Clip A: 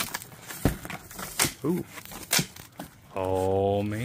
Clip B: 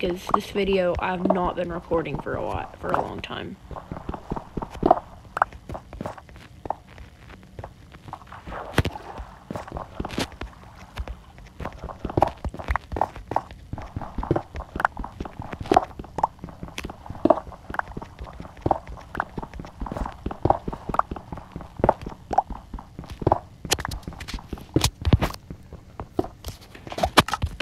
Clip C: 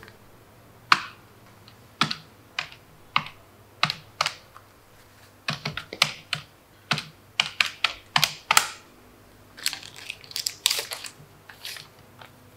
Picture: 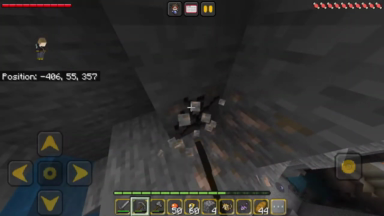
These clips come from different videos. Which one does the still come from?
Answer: B